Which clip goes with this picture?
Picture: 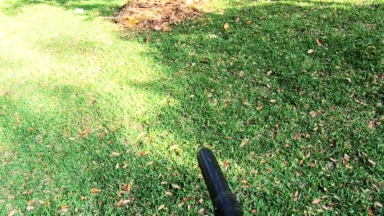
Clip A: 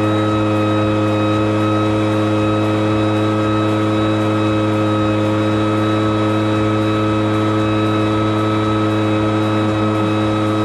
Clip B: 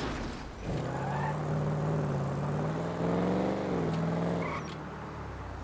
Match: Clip A